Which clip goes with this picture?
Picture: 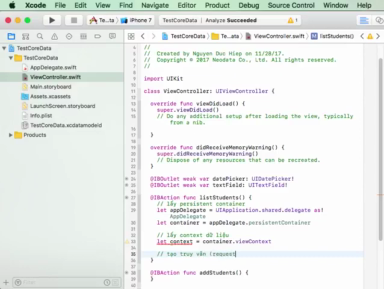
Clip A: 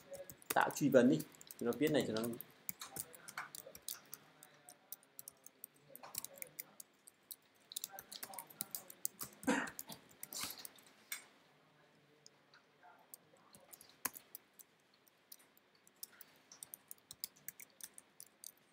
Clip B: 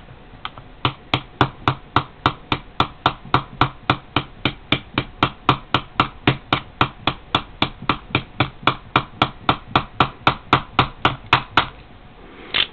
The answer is A